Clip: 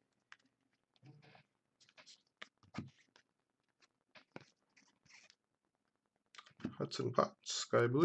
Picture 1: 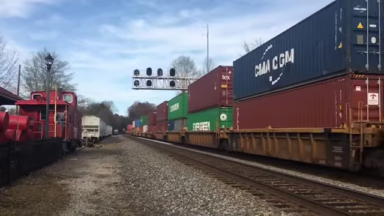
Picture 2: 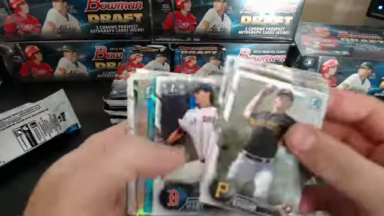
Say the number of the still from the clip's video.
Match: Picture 2